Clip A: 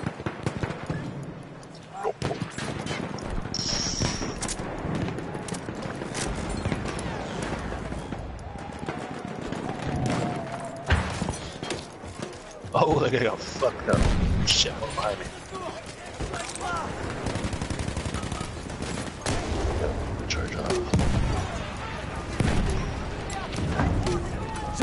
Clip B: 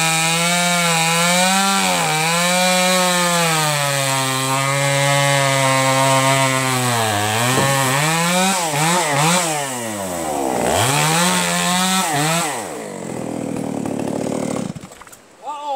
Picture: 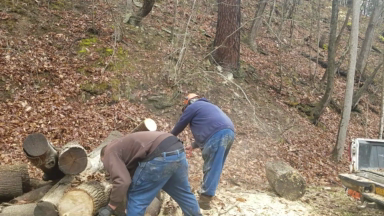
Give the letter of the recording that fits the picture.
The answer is B